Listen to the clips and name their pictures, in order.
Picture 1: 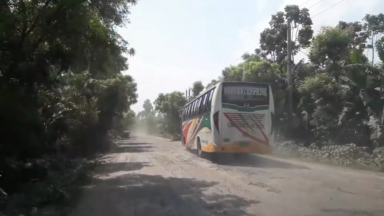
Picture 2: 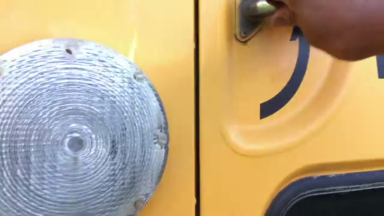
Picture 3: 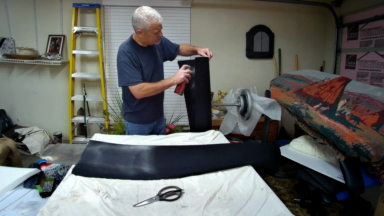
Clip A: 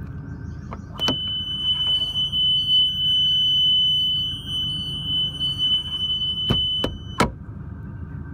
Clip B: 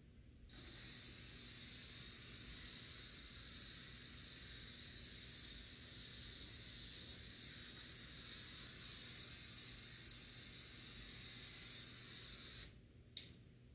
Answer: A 2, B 3